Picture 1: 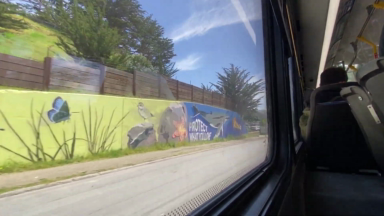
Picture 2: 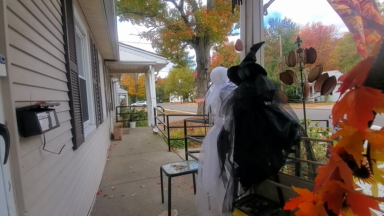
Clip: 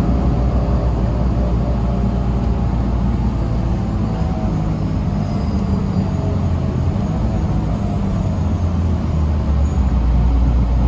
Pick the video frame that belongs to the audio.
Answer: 1